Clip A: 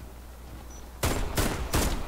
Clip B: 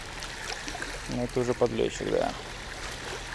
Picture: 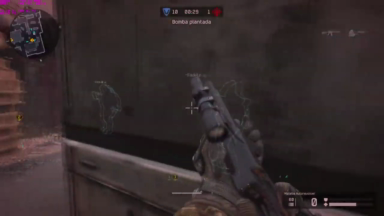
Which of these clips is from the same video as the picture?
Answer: A